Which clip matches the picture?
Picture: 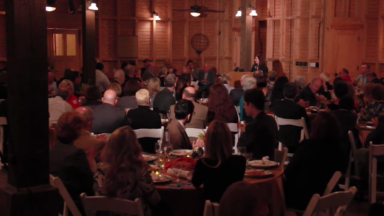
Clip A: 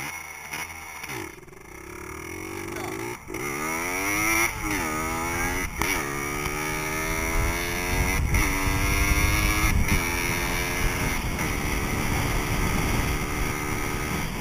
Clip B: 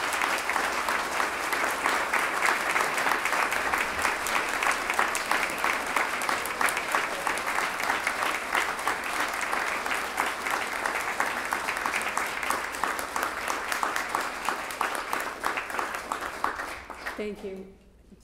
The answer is B